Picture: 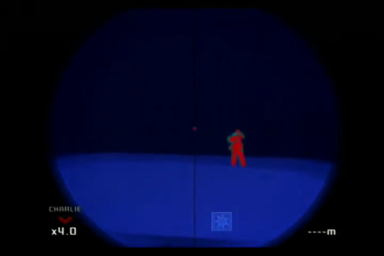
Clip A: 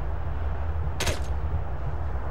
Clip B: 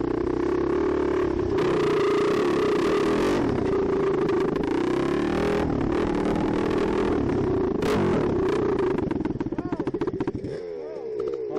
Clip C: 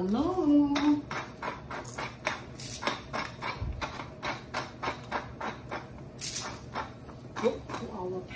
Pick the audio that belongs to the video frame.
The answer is A